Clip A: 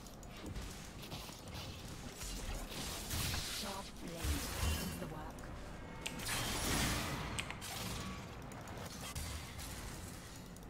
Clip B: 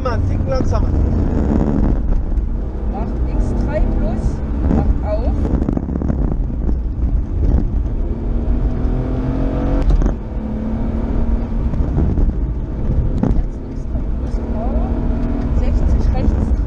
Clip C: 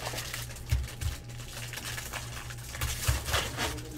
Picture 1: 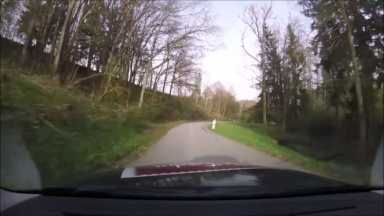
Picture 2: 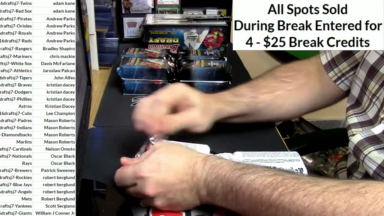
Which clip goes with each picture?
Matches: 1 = B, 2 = C